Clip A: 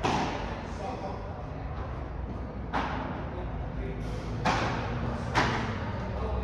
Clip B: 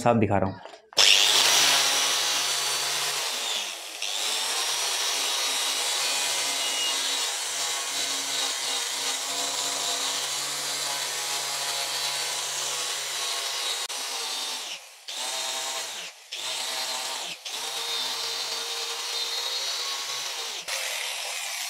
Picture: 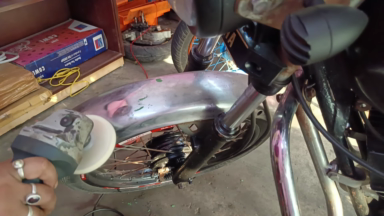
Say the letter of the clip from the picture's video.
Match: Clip B